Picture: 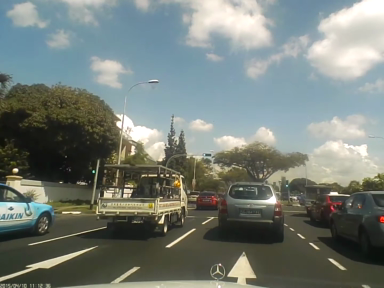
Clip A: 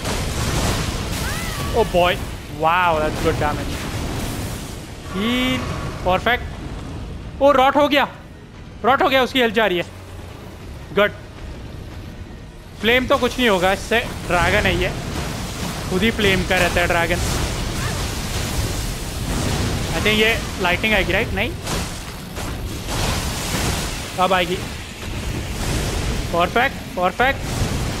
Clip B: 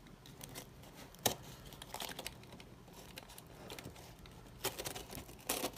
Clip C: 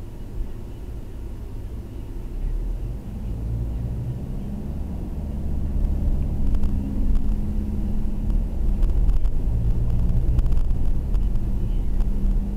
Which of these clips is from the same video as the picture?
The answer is C